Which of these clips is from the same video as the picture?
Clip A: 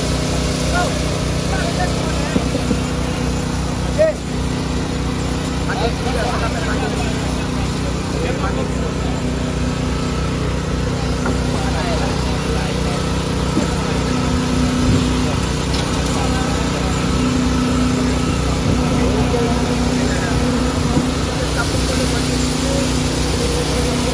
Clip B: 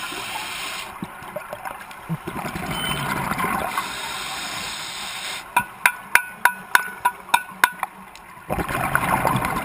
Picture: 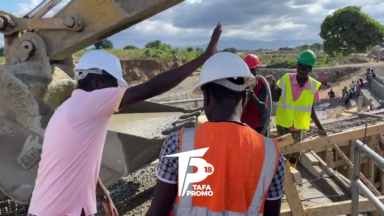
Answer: A